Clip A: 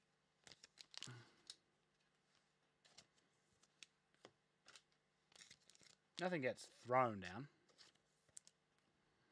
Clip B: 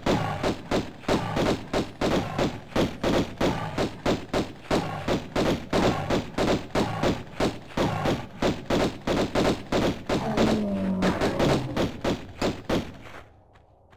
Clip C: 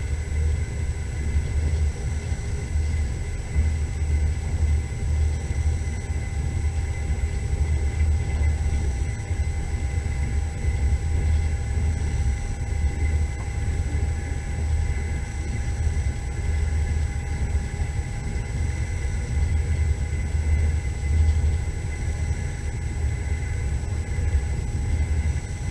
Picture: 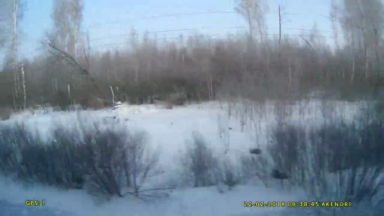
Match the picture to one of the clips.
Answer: C